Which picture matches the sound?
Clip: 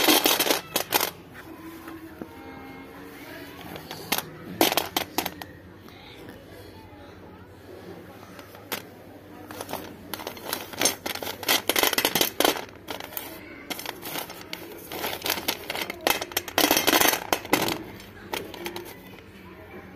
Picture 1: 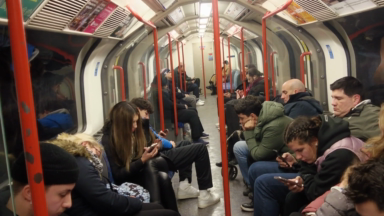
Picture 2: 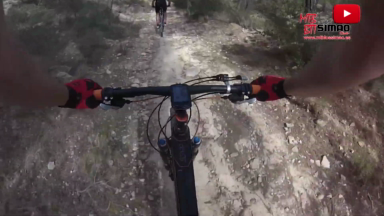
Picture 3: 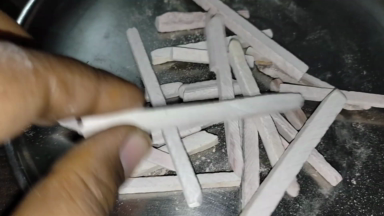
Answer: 3